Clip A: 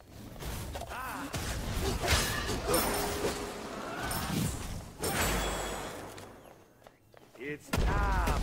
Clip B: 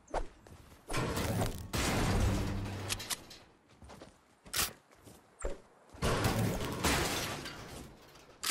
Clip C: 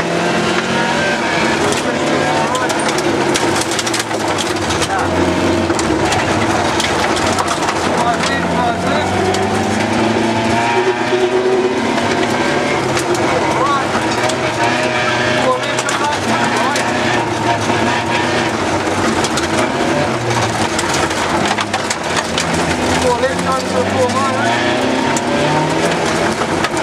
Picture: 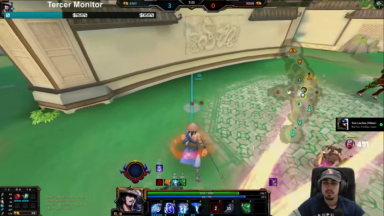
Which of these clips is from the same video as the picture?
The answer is A